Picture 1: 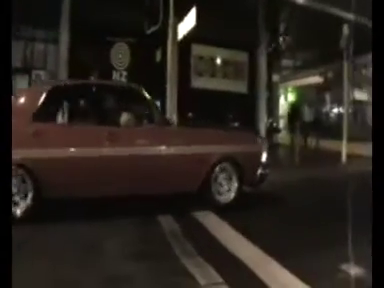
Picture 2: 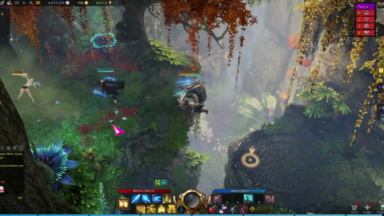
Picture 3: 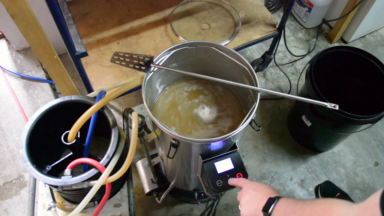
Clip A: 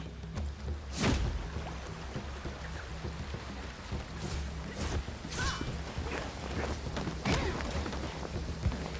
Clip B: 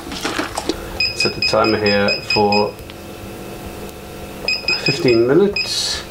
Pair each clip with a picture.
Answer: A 2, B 3